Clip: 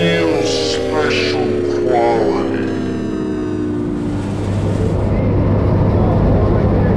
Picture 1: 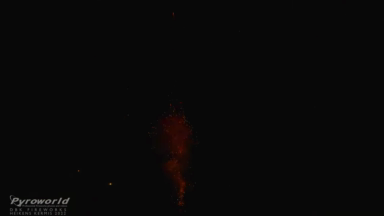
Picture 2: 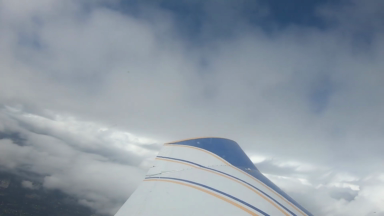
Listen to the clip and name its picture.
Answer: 2